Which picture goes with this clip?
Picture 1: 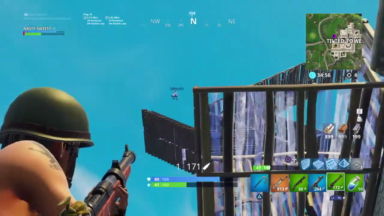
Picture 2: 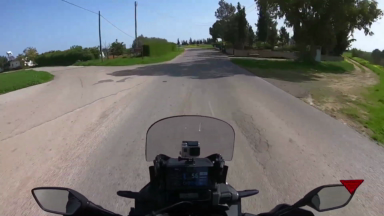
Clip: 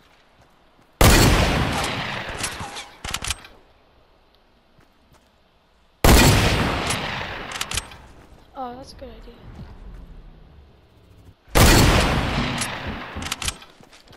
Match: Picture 1